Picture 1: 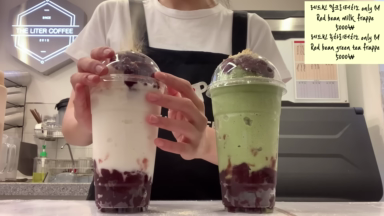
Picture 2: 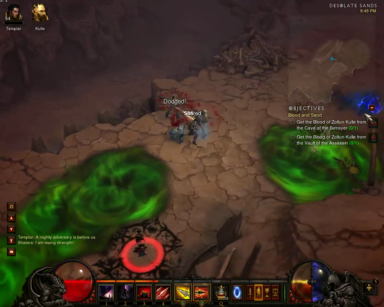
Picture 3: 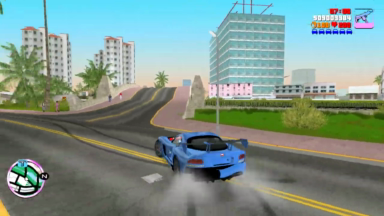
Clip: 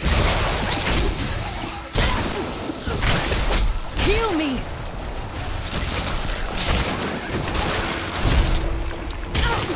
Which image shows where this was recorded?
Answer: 2